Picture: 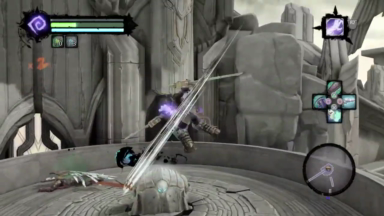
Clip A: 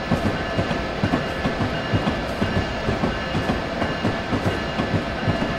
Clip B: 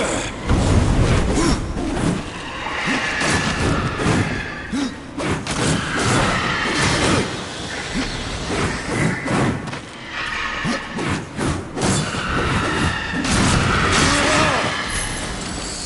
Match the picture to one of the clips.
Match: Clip B